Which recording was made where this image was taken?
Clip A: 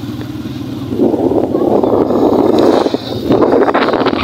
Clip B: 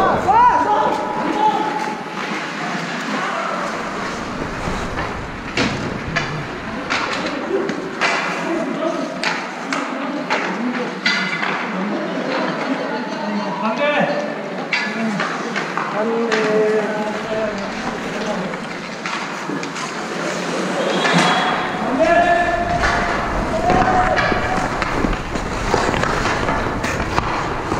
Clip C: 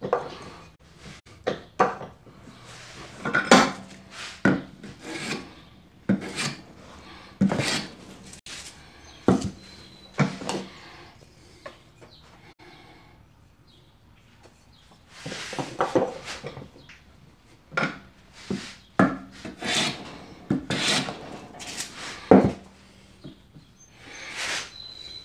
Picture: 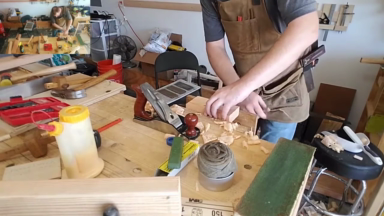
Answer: C